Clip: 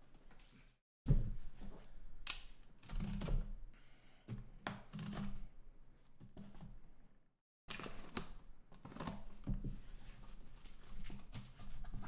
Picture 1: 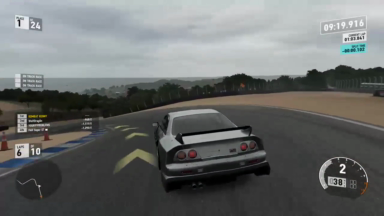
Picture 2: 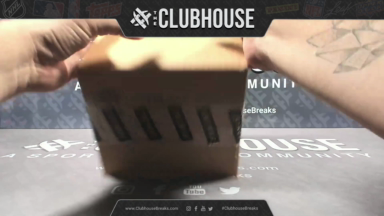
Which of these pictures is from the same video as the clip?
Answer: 2